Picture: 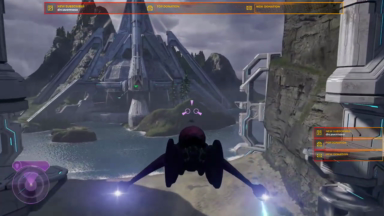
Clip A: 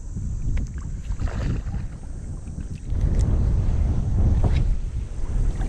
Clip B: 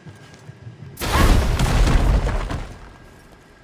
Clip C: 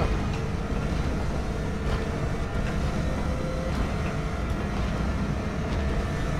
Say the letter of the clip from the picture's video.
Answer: C